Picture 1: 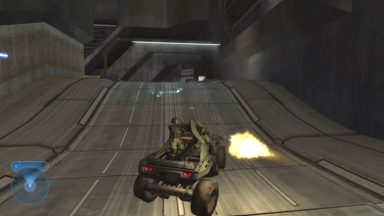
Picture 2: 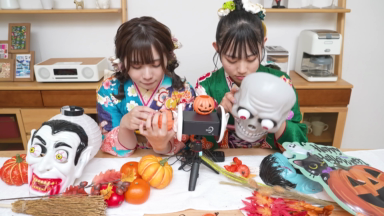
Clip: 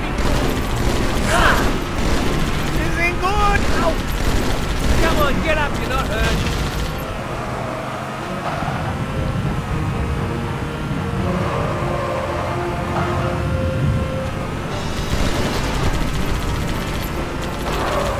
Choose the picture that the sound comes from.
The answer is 1